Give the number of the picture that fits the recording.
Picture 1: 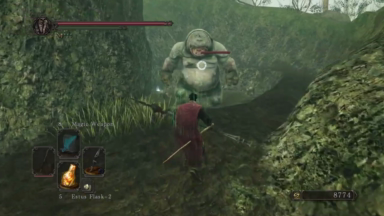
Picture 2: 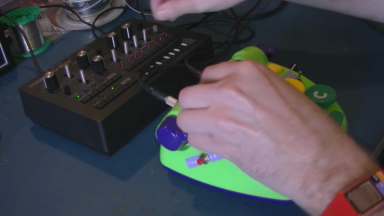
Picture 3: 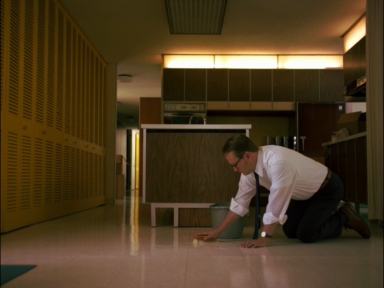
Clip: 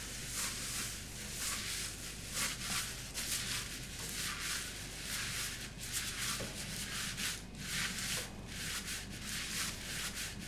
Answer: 3